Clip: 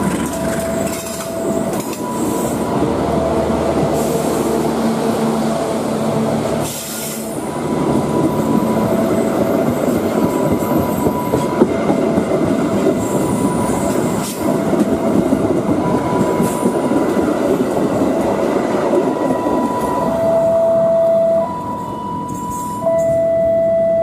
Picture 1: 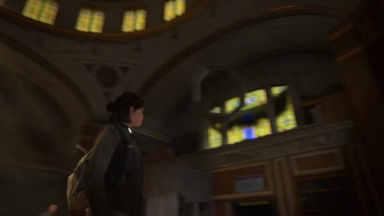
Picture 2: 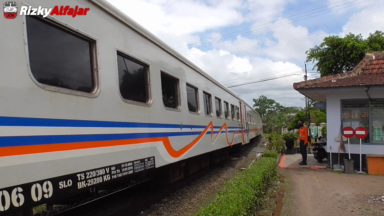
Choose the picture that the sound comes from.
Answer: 2